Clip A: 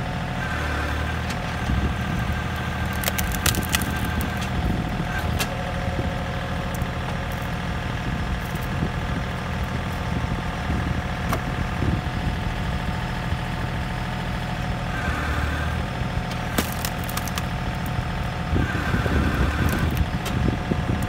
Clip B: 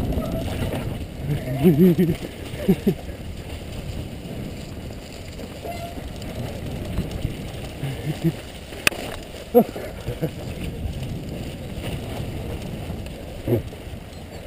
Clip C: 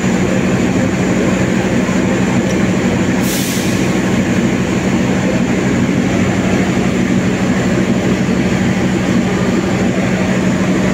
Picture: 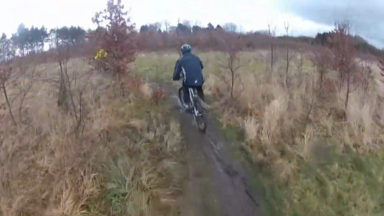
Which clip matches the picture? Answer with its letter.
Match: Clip B